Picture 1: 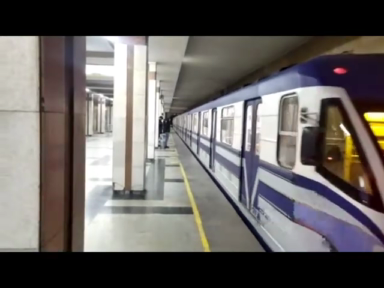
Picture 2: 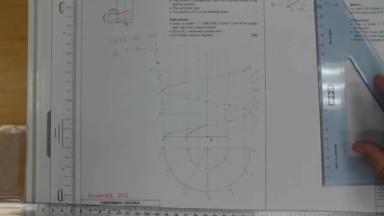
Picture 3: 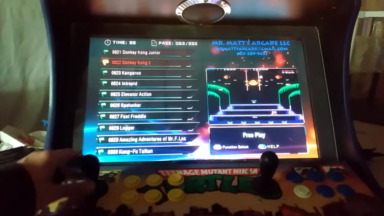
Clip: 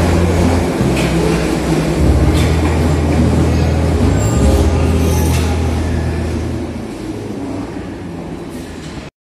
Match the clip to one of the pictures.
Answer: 1